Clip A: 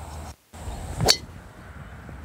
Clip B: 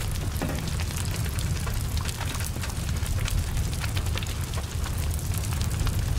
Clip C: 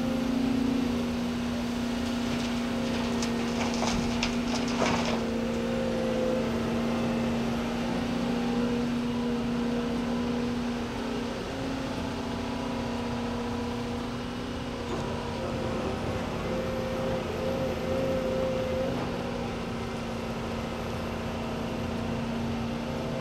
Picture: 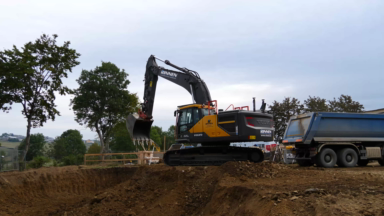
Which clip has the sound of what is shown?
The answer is C